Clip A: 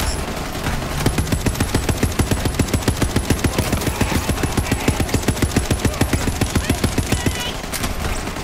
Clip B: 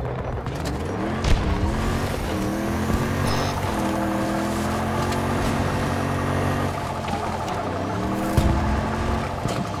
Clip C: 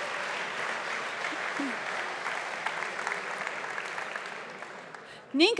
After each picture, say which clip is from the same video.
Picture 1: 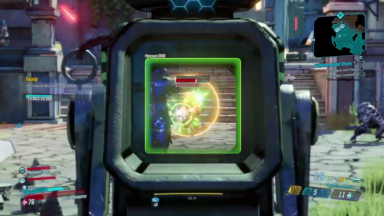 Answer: A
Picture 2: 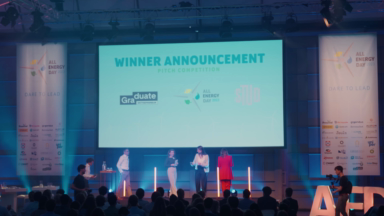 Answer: C